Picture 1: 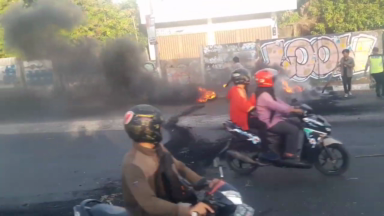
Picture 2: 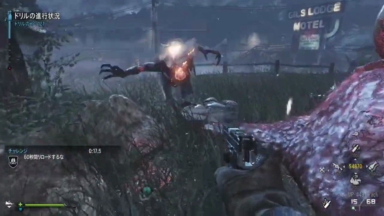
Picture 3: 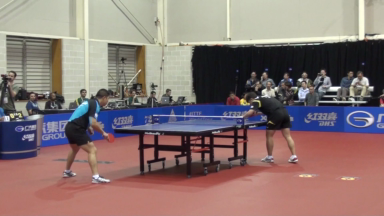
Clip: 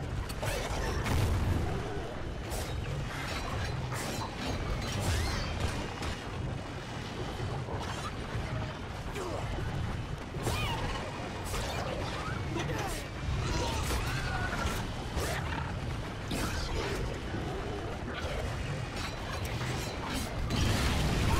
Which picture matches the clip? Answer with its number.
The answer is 2